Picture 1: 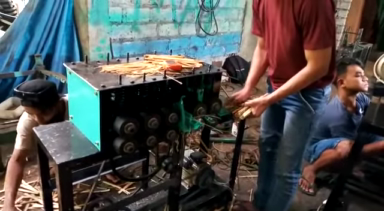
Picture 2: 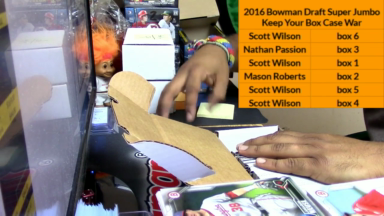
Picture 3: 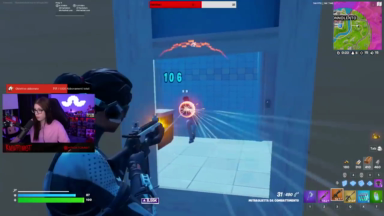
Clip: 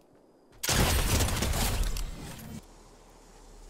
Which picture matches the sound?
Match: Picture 3